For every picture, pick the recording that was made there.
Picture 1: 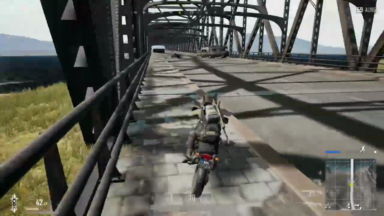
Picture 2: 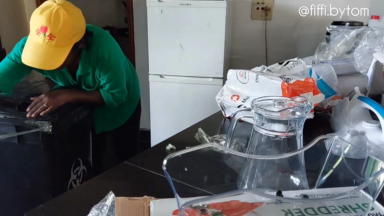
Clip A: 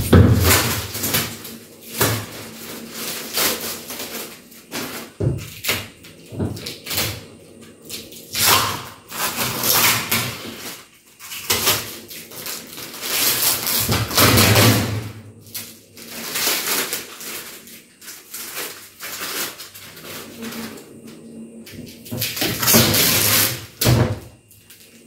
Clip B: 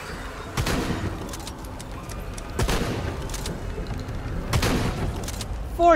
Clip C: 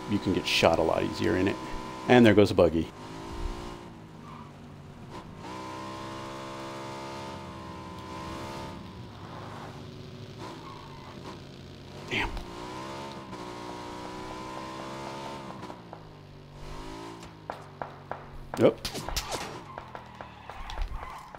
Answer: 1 C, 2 A